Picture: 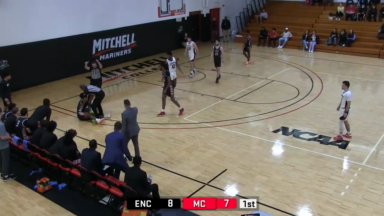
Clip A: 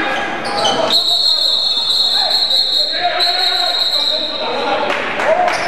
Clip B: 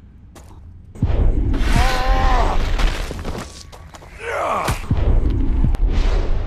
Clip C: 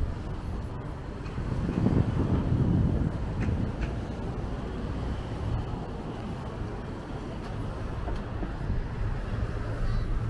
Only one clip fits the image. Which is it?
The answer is A